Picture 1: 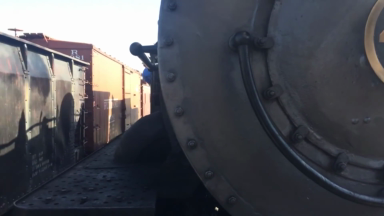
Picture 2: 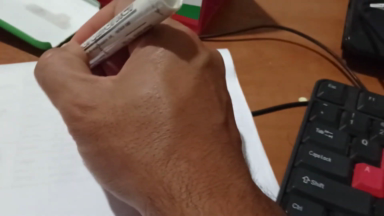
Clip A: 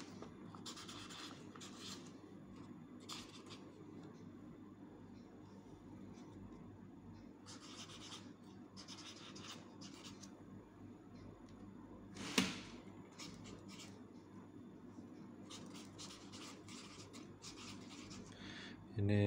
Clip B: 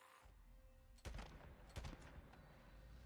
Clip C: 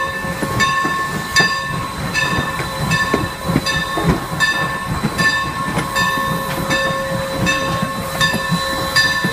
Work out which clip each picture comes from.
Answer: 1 C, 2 A